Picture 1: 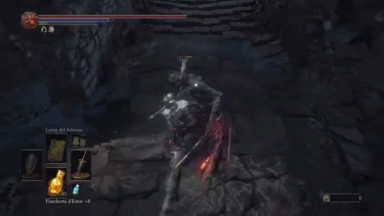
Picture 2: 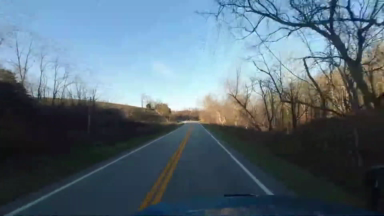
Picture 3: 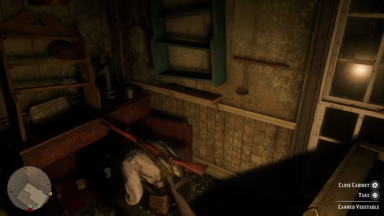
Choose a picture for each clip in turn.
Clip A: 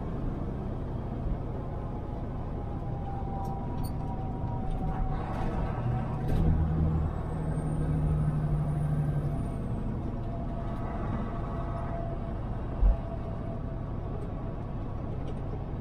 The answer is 2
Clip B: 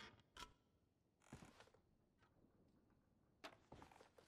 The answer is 3